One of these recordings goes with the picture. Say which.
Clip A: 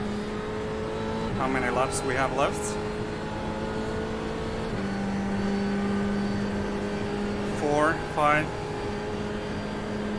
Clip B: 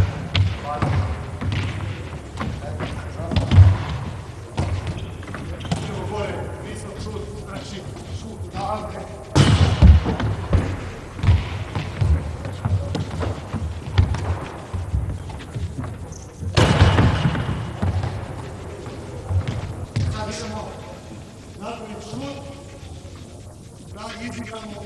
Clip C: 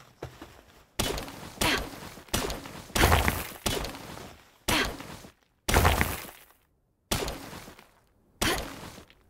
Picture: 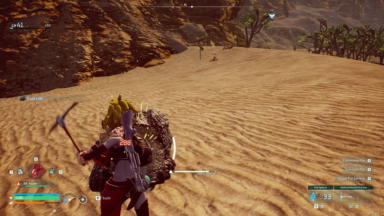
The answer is C